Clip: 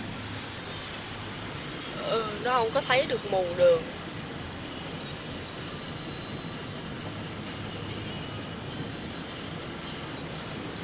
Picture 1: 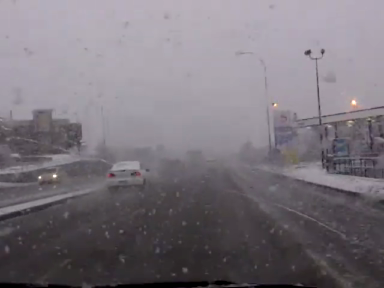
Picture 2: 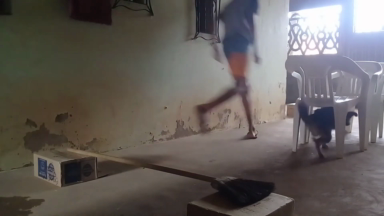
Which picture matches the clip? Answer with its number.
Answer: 1